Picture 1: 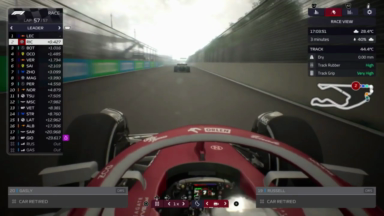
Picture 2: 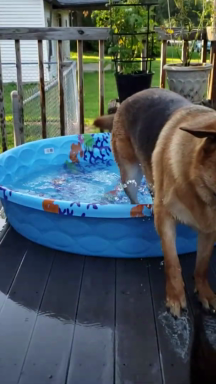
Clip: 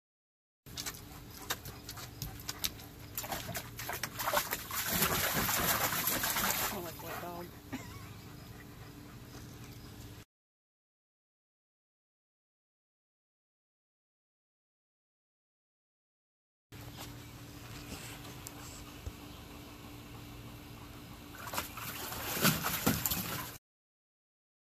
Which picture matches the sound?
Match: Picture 2